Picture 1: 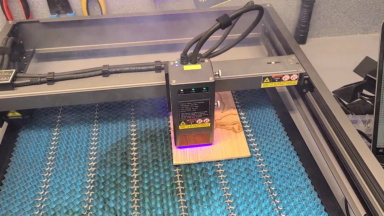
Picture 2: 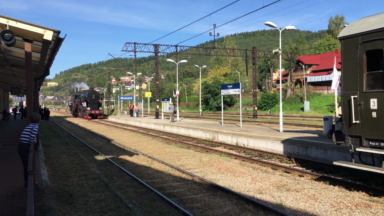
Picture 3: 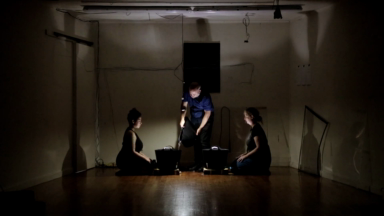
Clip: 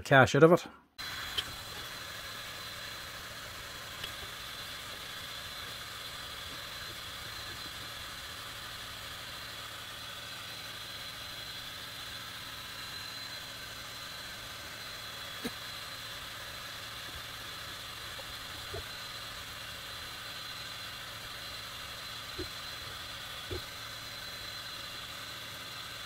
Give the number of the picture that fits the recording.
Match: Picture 1